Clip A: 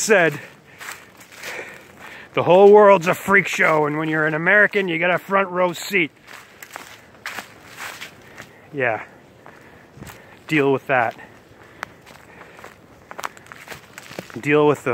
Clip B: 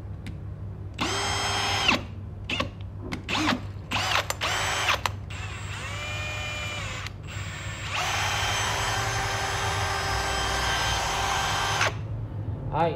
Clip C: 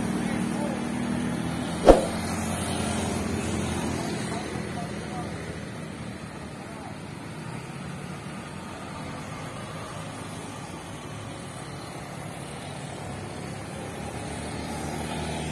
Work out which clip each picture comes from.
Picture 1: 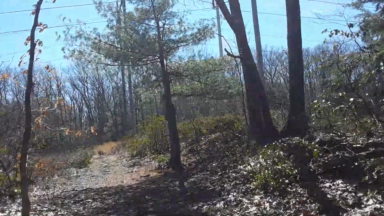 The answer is A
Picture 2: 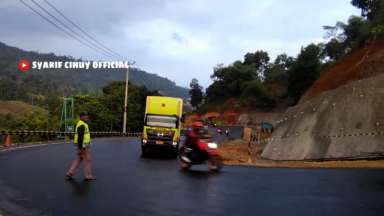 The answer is C